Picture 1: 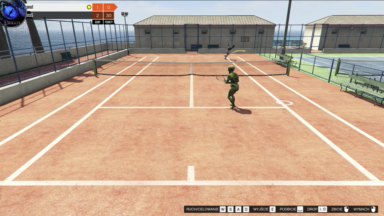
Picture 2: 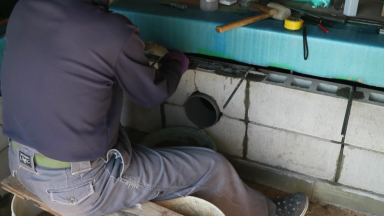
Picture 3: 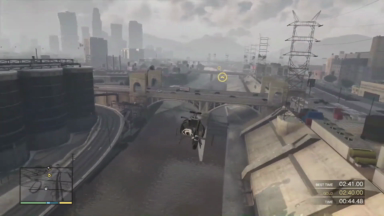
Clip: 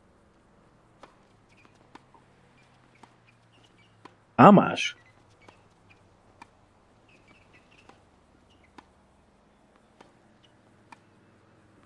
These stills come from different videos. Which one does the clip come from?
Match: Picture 1